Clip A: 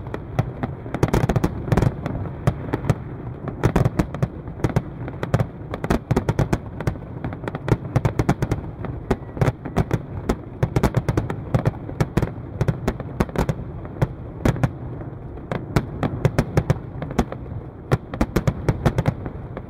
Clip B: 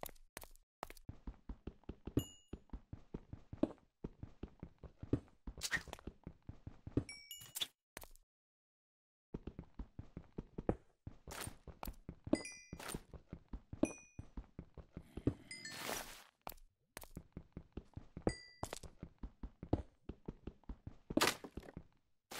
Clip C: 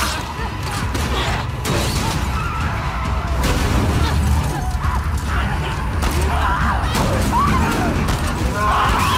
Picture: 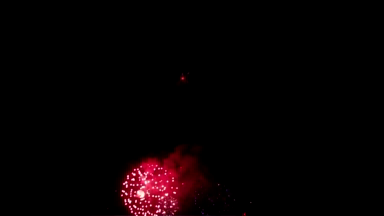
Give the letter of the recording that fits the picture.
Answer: A